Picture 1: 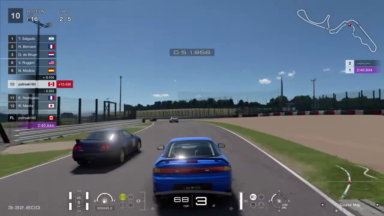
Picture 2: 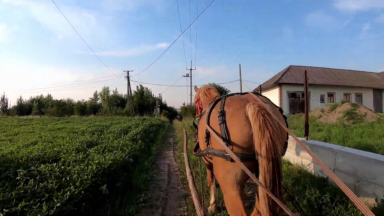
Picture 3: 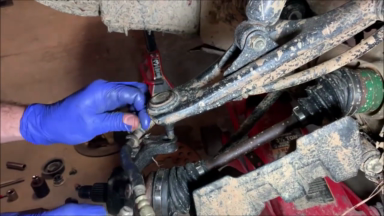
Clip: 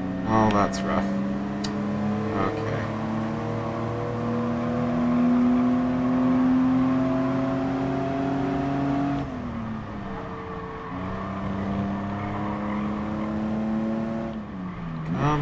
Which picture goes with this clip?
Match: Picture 1